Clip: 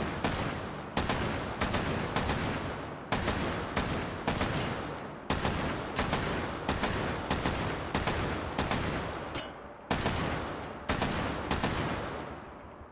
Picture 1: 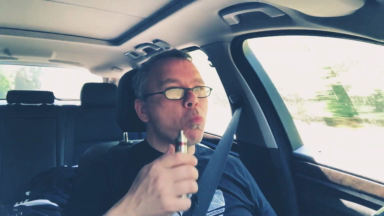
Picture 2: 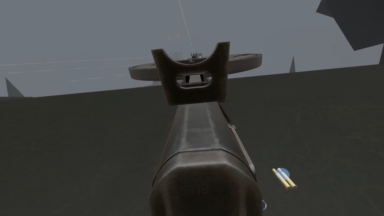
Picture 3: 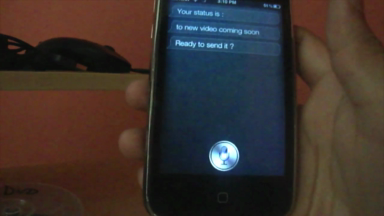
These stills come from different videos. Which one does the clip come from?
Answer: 2